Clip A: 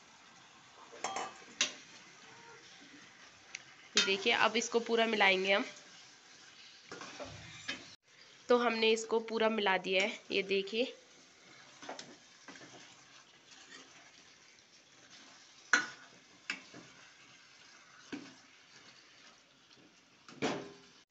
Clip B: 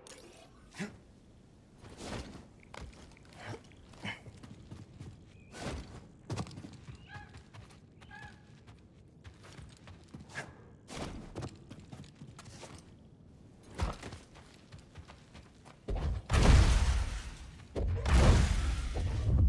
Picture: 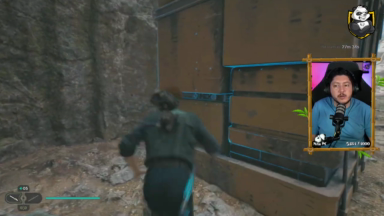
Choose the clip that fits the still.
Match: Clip B